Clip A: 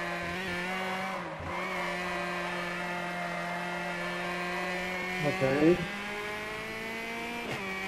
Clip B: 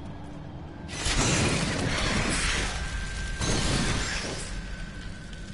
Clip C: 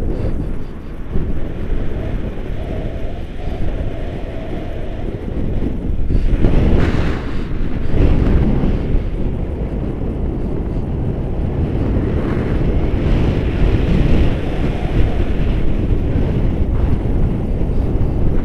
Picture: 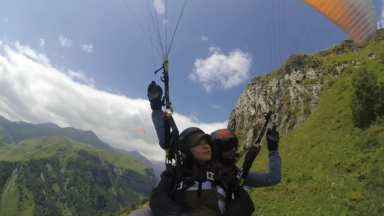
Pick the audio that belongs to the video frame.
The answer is C